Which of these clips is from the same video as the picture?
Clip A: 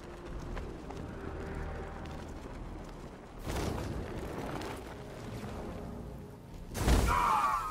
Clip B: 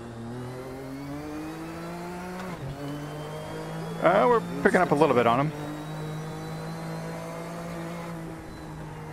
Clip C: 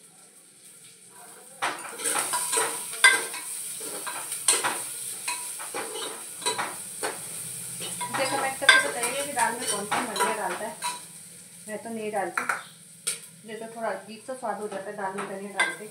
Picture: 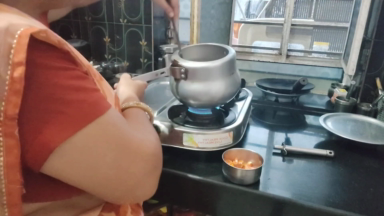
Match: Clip C